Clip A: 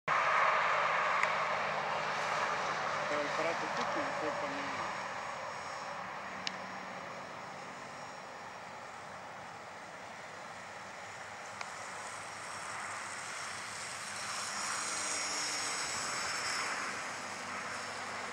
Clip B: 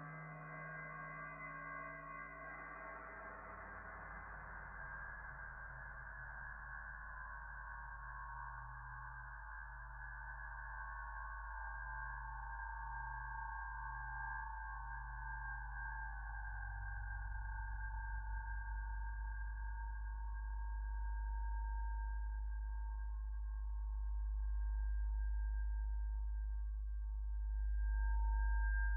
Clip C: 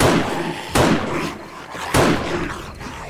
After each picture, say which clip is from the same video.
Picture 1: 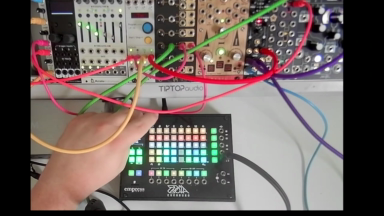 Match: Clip B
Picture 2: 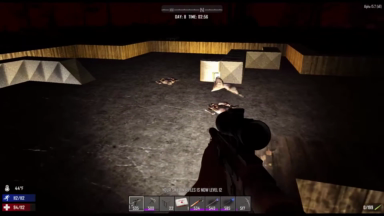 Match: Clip C